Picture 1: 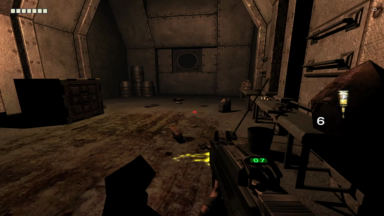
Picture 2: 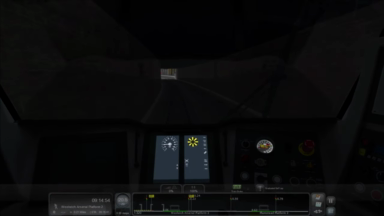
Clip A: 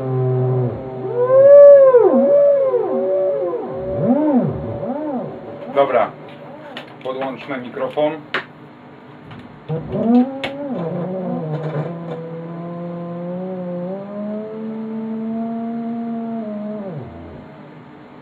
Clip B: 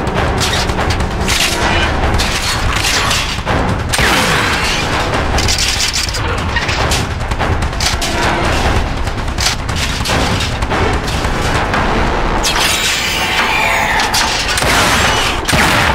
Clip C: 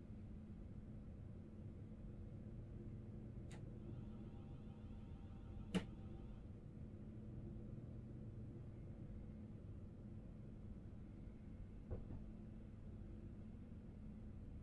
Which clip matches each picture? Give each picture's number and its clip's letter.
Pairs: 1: B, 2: C